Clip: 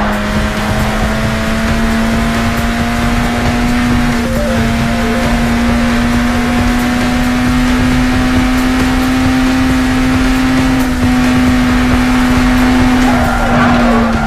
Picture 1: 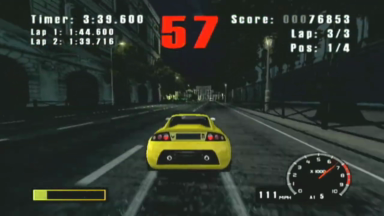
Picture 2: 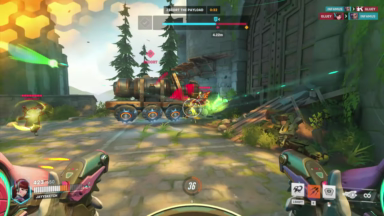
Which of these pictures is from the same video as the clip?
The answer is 1